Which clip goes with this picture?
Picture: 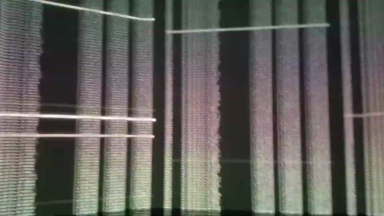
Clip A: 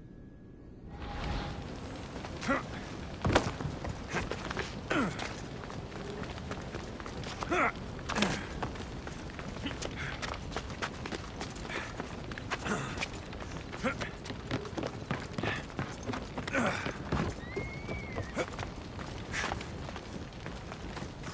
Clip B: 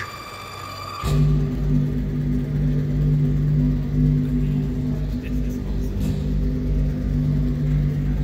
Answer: B